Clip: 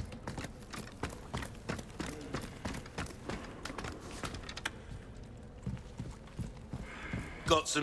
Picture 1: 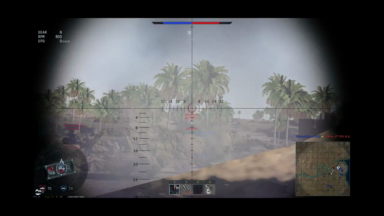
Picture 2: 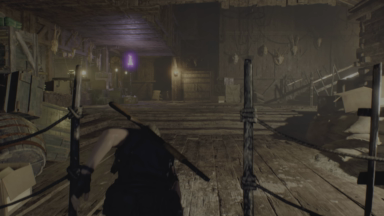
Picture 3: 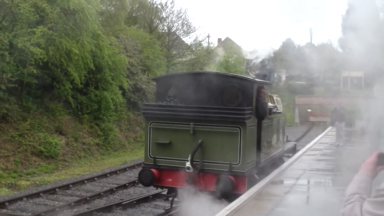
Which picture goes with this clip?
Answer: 2